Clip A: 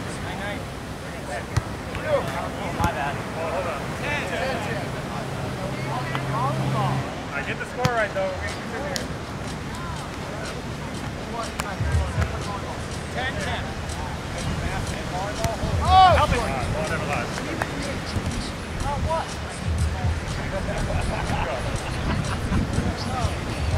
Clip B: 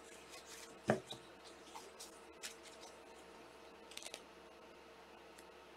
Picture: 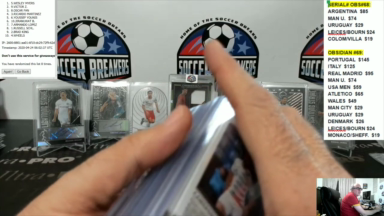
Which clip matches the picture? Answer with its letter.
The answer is B